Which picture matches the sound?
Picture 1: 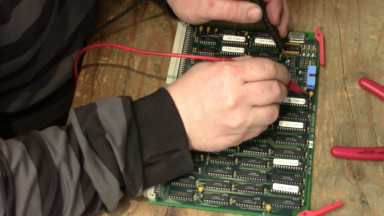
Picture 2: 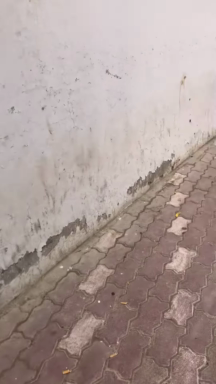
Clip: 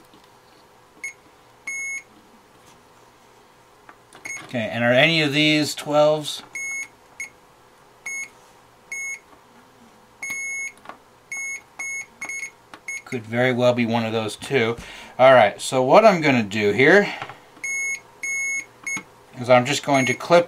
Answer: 1